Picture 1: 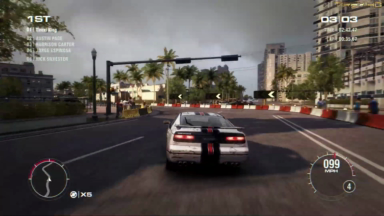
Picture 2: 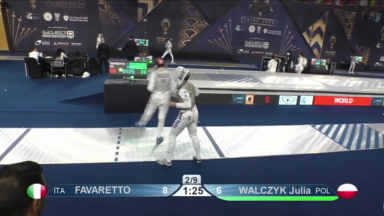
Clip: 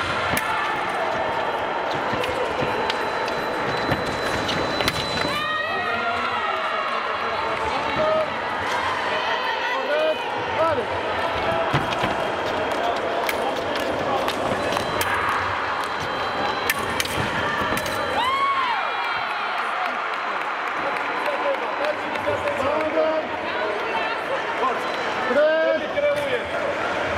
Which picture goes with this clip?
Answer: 2